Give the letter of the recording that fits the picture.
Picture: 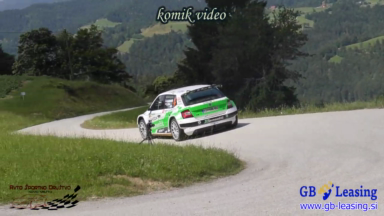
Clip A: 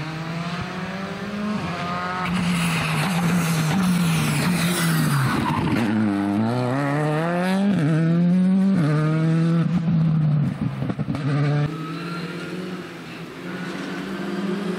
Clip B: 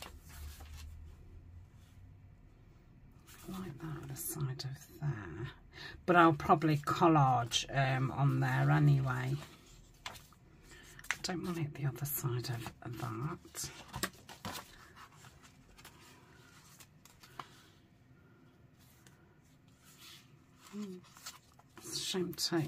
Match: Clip A